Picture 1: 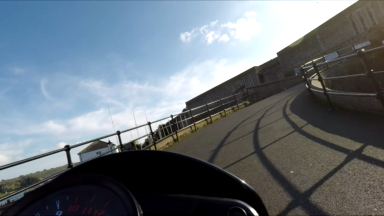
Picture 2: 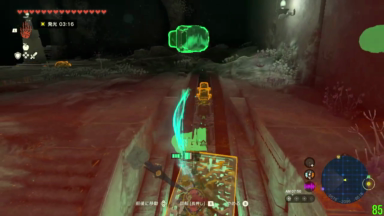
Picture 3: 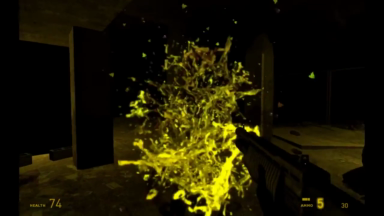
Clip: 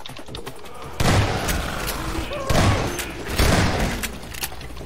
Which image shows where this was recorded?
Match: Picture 3